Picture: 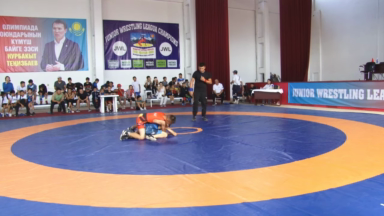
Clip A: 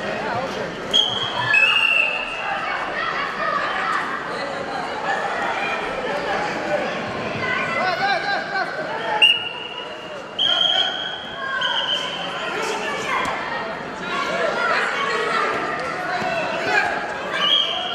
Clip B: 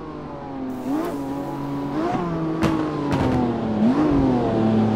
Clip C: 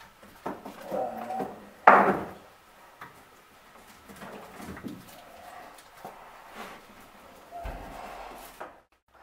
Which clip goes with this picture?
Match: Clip A